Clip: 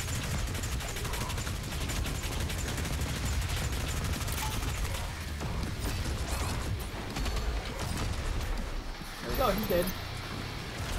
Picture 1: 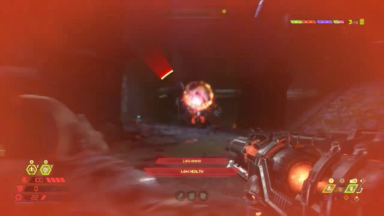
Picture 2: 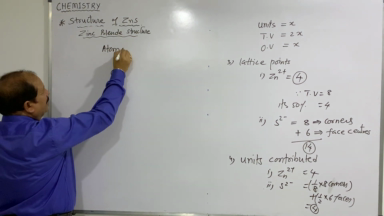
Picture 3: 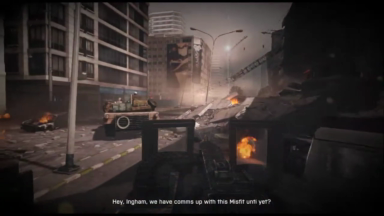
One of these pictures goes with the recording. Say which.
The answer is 1